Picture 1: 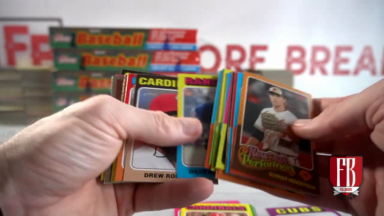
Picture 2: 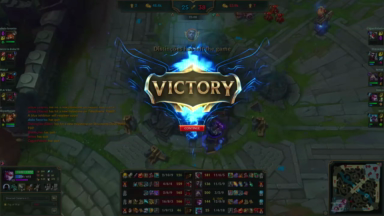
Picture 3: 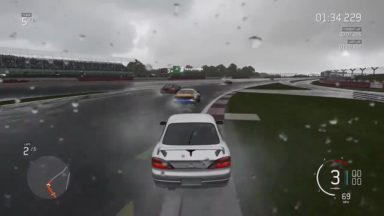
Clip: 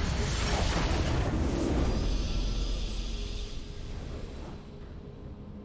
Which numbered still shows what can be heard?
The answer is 2